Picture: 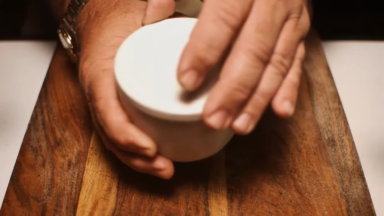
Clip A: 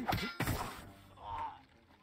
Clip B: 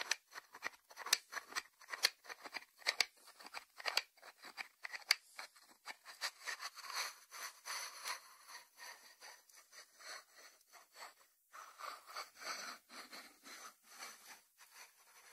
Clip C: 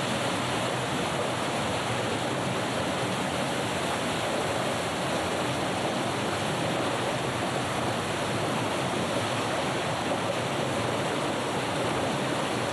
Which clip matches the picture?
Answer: B